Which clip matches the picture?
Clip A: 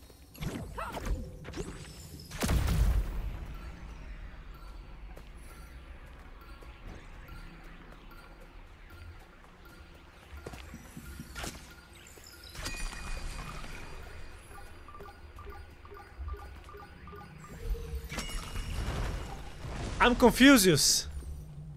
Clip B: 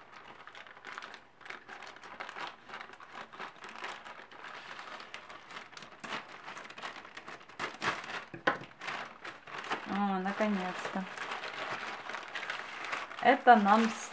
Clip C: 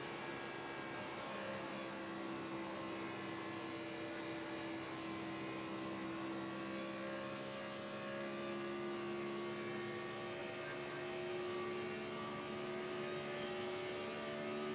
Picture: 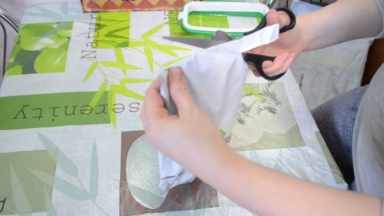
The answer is B